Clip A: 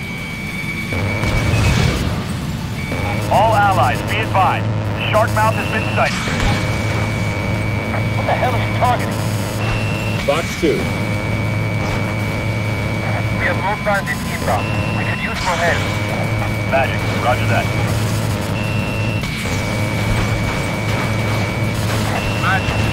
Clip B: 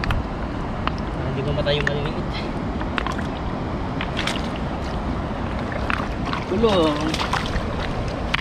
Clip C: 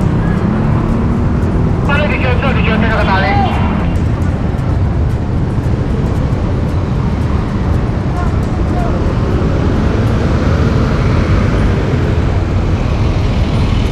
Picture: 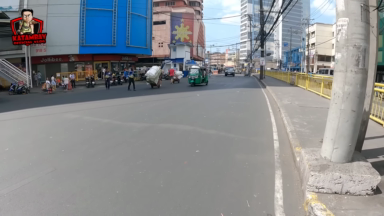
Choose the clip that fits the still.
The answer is C